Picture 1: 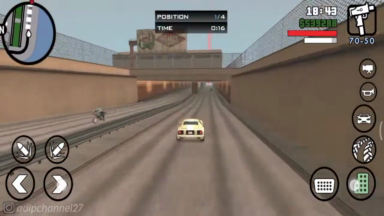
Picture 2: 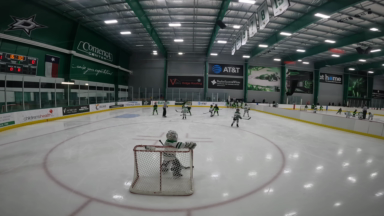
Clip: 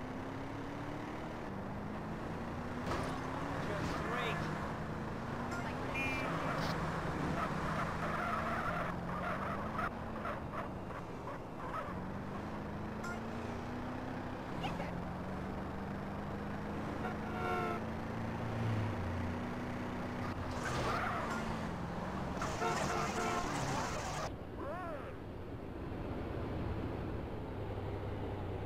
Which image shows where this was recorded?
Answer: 1